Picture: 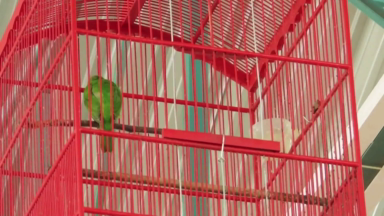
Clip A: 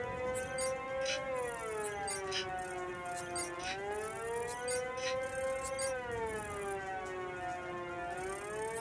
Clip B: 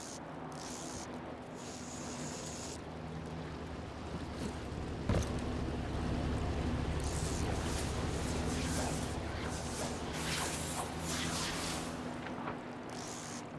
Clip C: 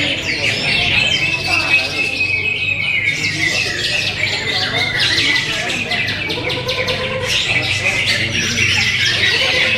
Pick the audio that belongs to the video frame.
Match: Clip C